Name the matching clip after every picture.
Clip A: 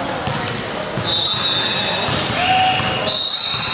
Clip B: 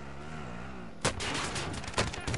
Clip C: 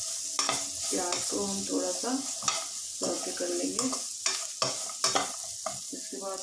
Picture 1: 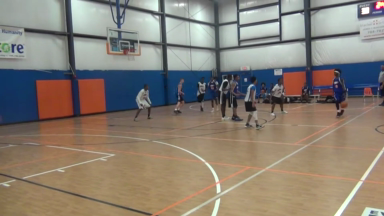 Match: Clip A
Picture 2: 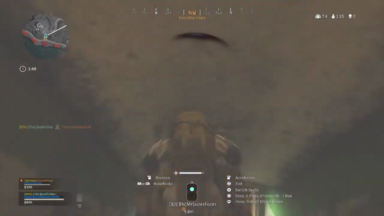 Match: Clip B